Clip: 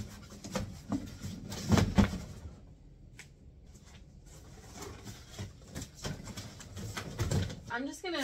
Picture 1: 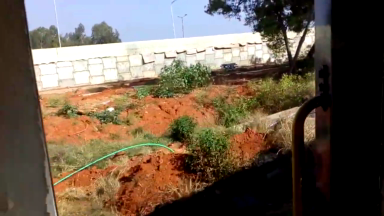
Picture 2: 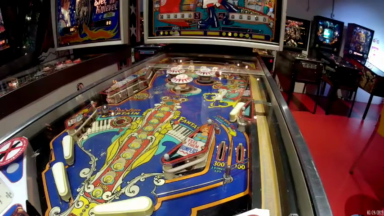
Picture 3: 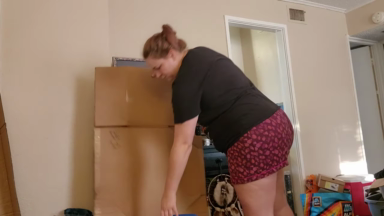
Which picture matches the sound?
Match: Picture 3